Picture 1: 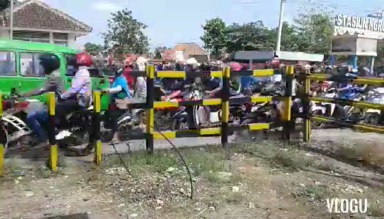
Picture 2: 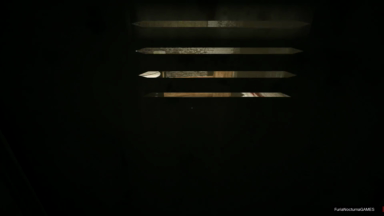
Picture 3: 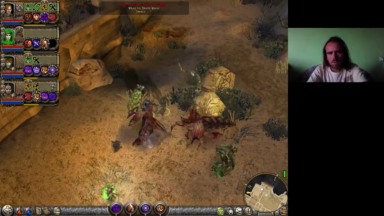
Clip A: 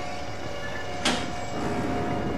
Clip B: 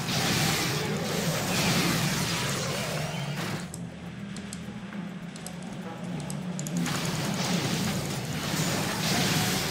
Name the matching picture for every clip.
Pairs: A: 2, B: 3